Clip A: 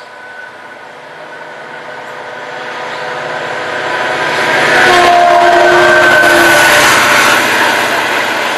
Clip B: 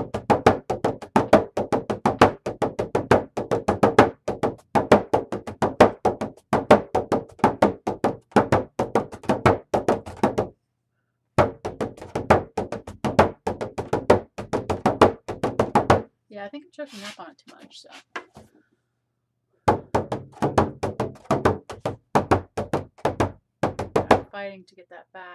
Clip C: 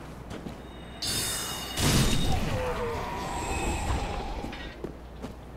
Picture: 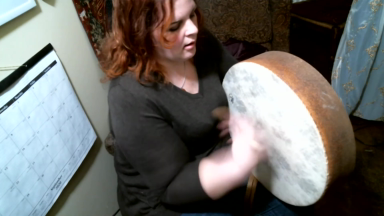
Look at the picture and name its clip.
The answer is B